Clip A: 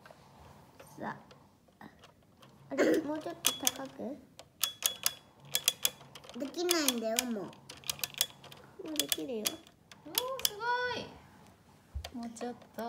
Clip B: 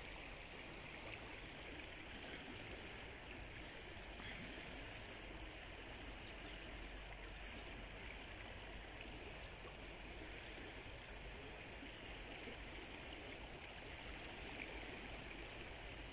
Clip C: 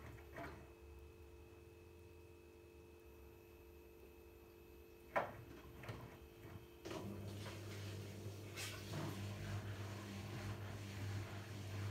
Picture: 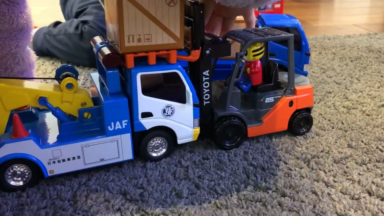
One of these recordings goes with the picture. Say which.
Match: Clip A